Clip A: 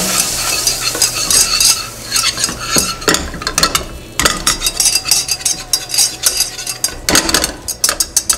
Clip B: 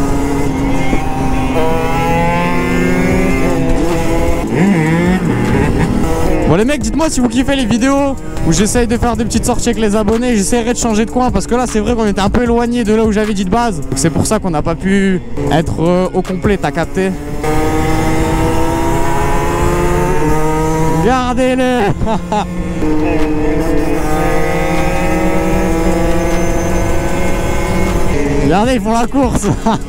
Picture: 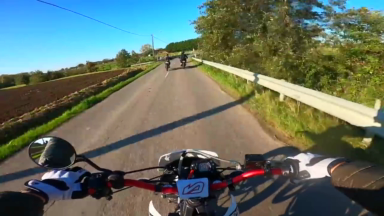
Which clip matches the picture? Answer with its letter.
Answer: B